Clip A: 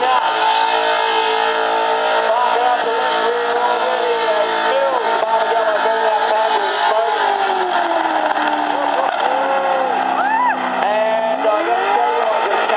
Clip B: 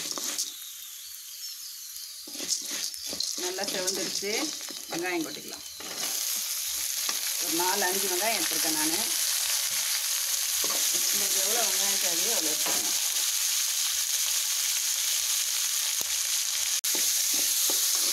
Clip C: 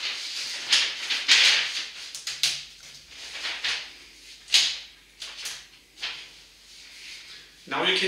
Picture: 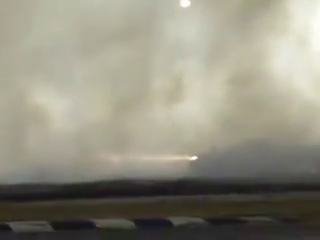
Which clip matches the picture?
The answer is A